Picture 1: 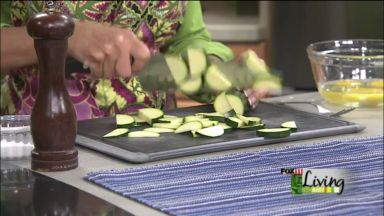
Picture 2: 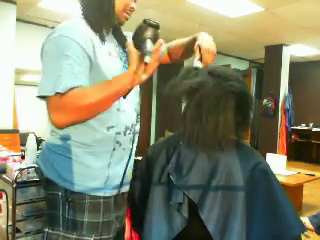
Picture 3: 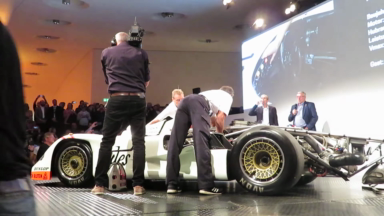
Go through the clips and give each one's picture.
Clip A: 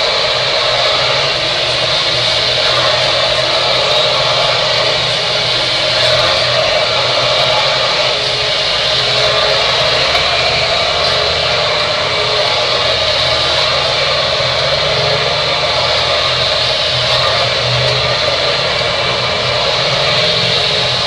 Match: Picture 2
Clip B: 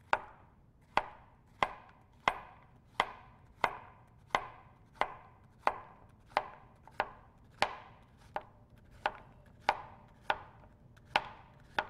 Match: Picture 1